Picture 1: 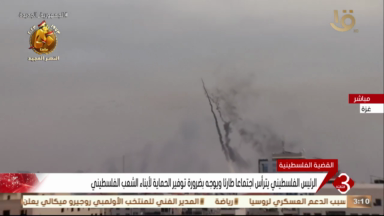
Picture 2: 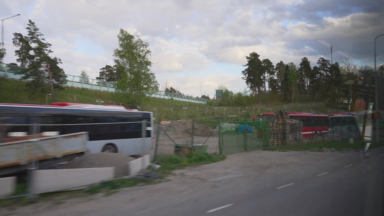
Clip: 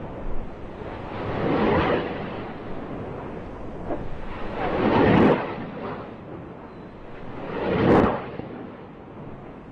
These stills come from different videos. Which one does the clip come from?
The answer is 1